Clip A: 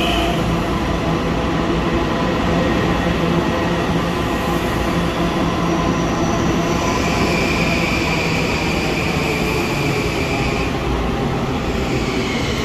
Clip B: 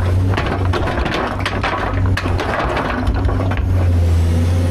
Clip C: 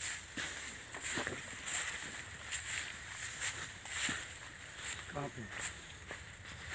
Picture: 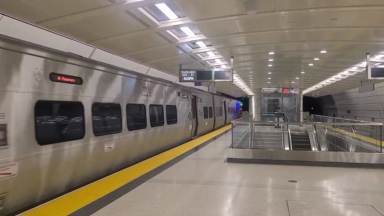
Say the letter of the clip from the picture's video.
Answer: A